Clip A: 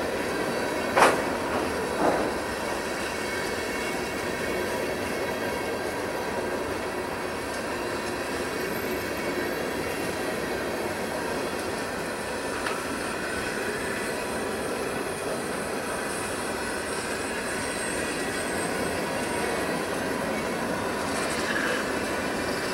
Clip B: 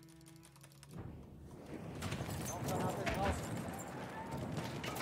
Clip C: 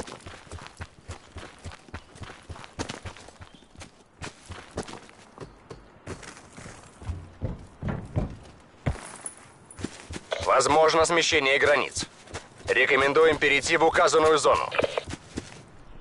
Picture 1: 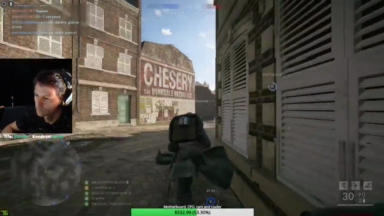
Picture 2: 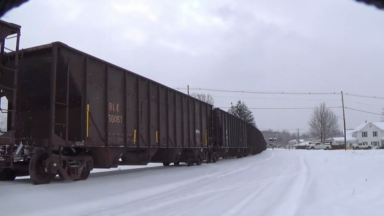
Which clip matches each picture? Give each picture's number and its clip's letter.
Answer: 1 B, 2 A